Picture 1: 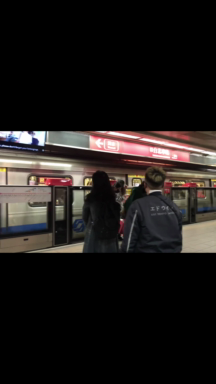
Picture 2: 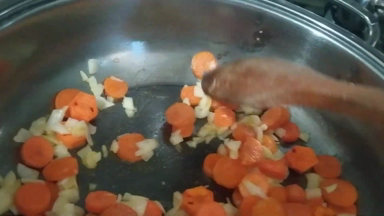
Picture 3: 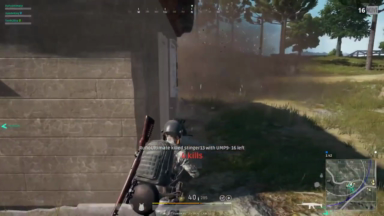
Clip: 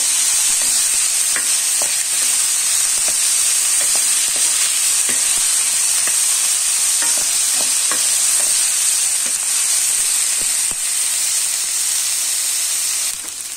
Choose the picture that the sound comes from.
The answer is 2